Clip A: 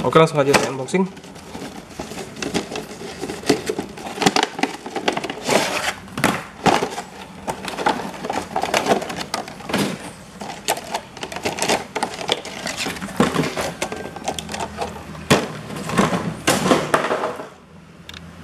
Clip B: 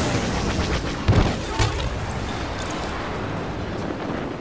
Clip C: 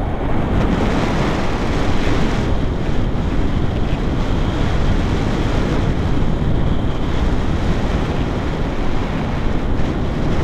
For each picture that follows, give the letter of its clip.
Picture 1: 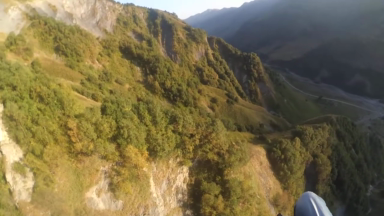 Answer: C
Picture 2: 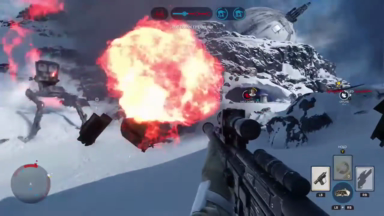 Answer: B